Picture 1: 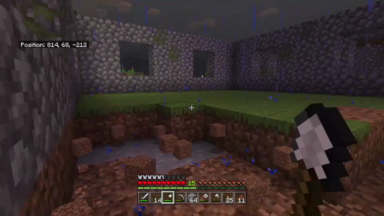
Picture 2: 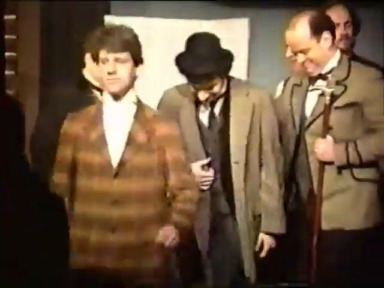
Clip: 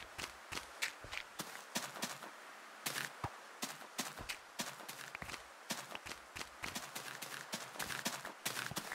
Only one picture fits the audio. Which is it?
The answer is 1